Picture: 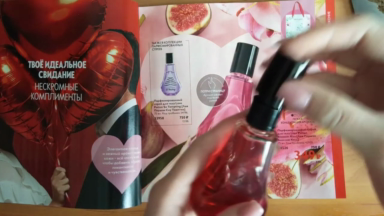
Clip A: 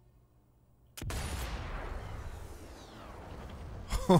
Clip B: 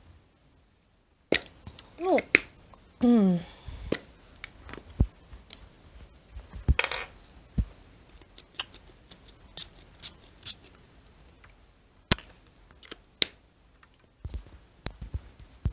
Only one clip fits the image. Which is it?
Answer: B